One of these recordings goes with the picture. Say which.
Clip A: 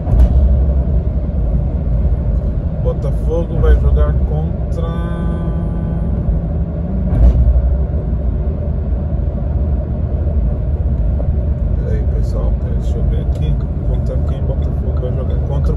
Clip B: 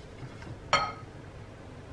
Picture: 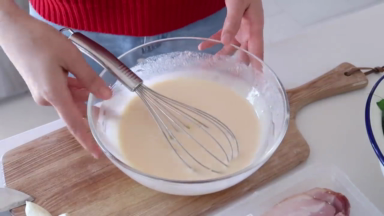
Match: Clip B